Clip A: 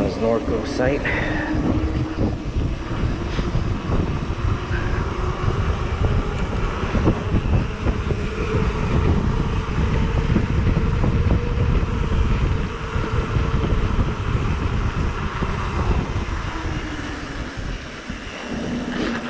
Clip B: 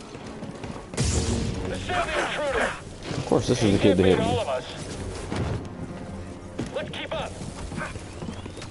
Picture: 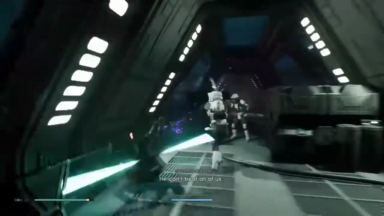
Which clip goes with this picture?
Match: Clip B